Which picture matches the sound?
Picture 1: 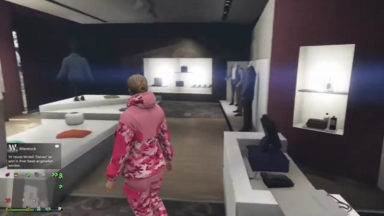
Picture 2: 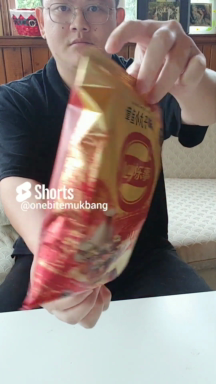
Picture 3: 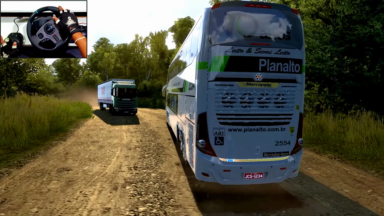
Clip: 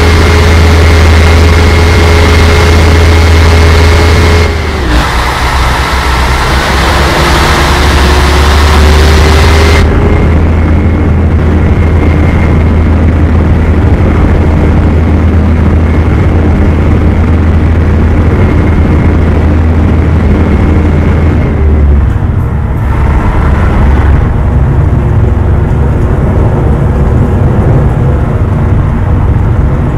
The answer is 3